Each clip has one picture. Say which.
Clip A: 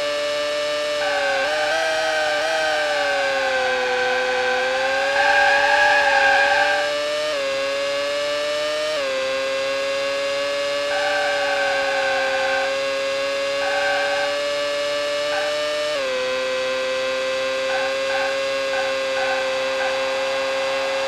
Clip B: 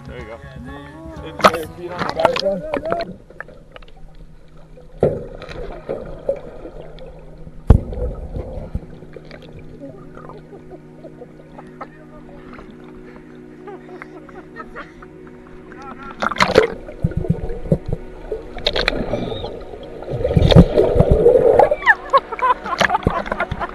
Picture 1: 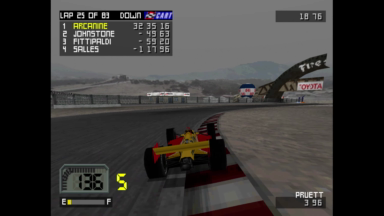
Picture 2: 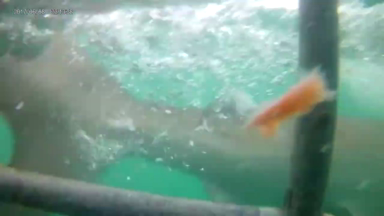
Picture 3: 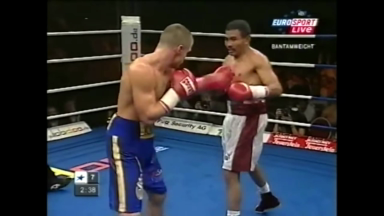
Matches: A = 1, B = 2